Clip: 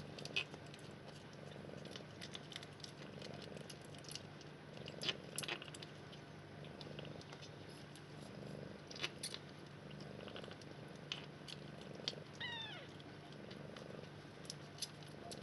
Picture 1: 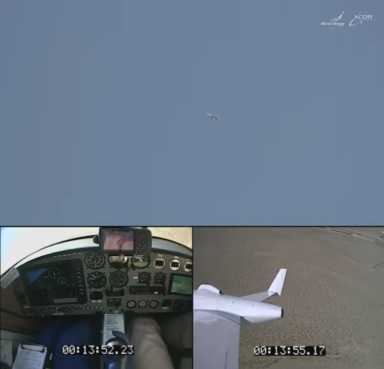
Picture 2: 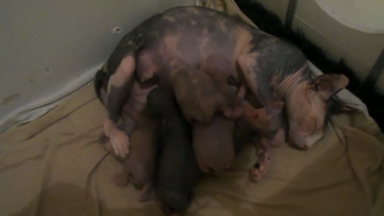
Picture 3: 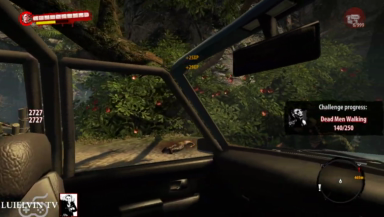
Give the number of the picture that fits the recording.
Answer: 2